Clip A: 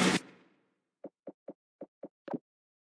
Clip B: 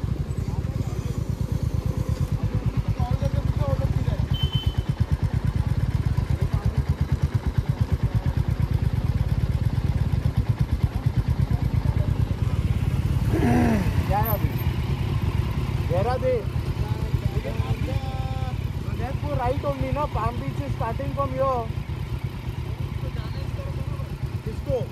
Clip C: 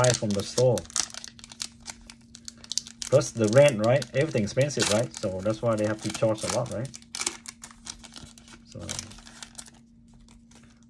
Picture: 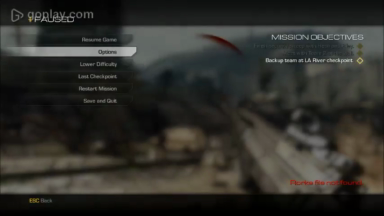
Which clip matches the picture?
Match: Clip A